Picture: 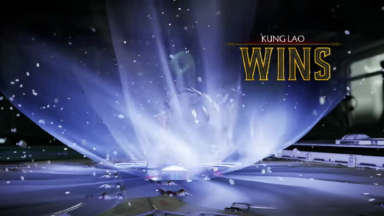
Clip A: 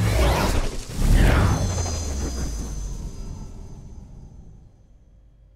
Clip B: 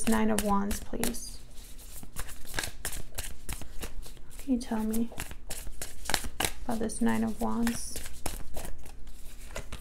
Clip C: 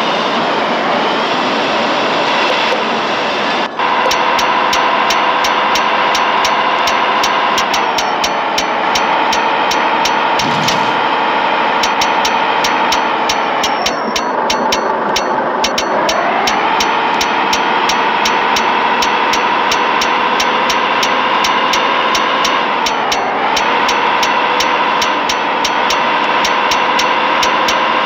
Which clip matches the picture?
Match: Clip A